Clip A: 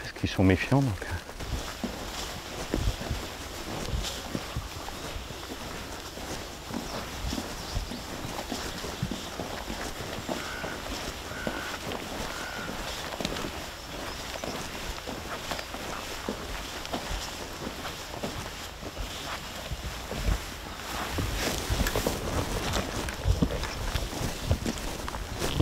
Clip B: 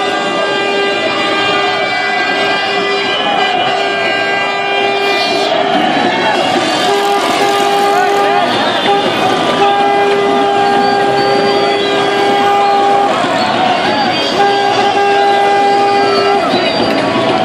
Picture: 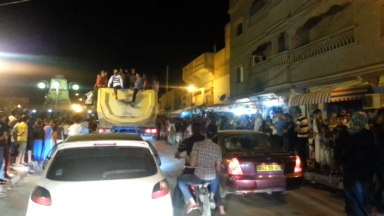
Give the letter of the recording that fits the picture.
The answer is B